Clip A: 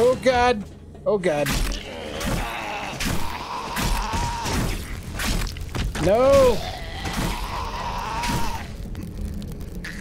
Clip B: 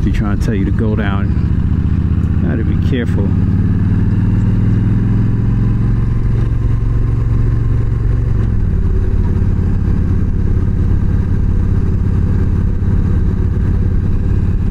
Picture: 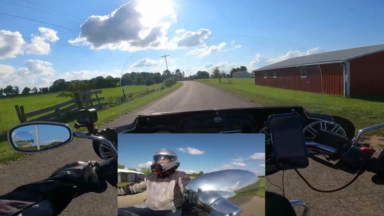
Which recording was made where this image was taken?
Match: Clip B